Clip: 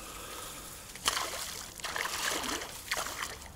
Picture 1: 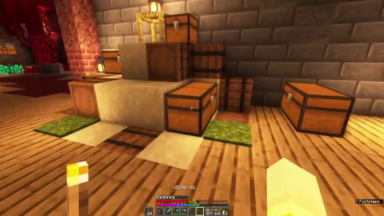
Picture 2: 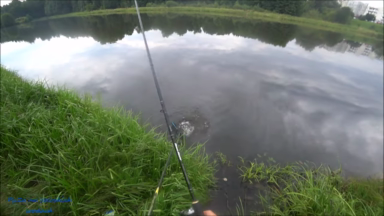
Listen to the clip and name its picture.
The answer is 2